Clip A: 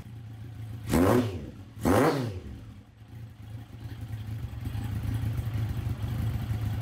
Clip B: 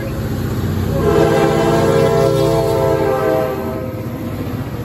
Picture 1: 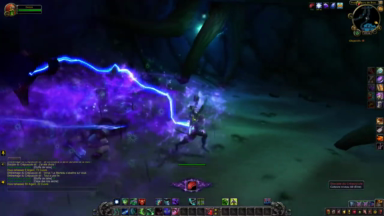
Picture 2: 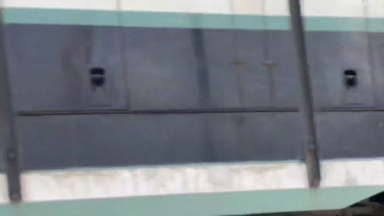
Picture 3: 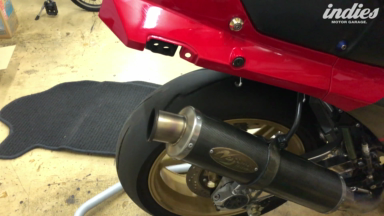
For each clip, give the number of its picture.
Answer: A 3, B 2